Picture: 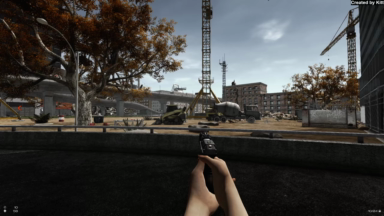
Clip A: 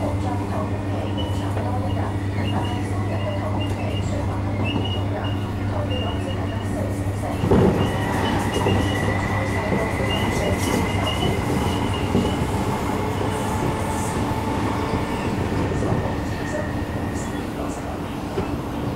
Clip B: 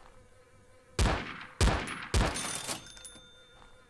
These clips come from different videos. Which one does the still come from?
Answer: B